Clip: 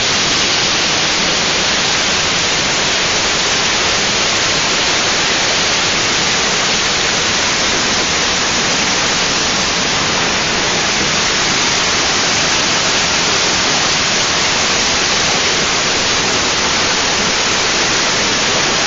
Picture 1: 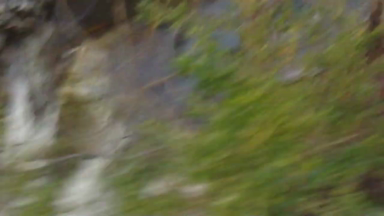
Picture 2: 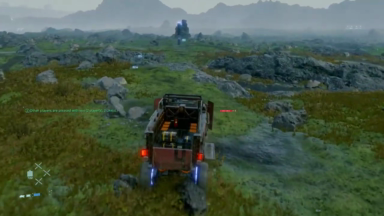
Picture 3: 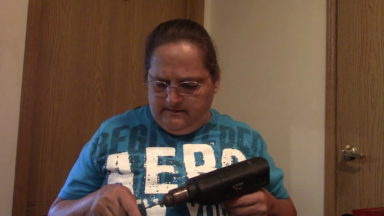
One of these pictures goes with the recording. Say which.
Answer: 1